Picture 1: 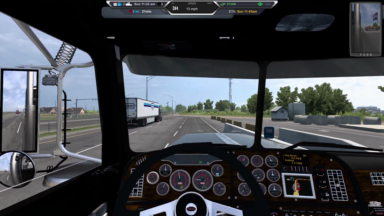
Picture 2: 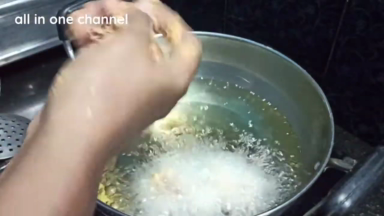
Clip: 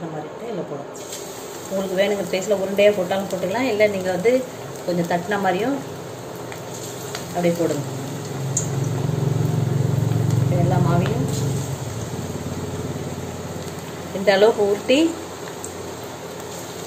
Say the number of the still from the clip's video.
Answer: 2